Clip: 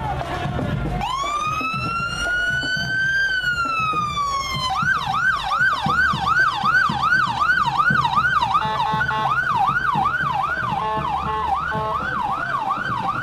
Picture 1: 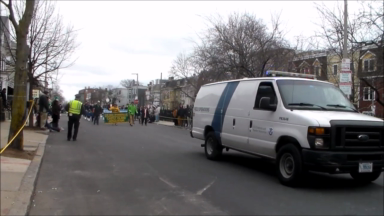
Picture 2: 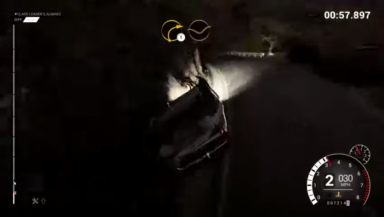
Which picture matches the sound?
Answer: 1